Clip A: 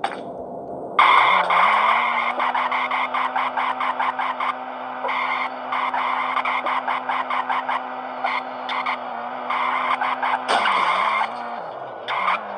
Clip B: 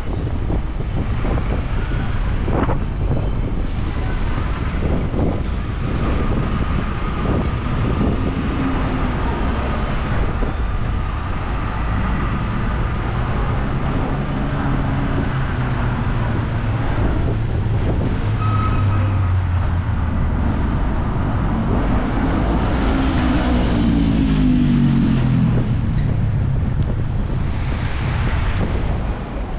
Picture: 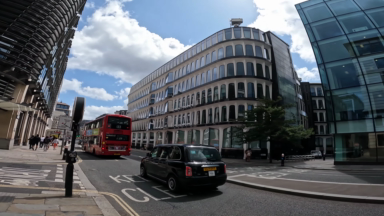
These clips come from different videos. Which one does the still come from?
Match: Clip B